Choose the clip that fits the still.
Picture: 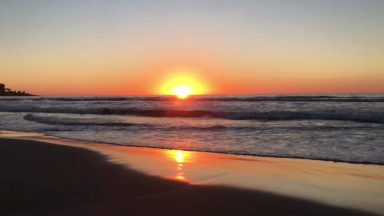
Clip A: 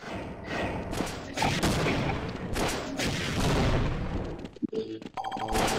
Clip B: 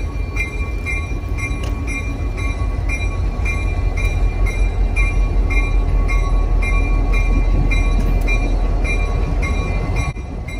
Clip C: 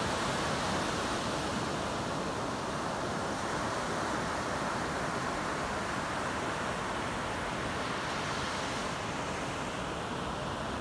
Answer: C